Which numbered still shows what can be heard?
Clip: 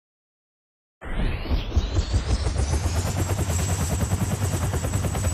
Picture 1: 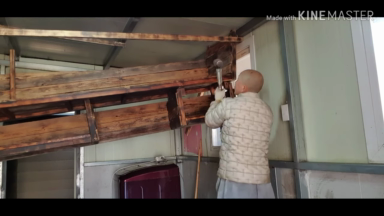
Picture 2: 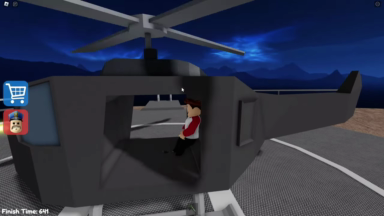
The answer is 2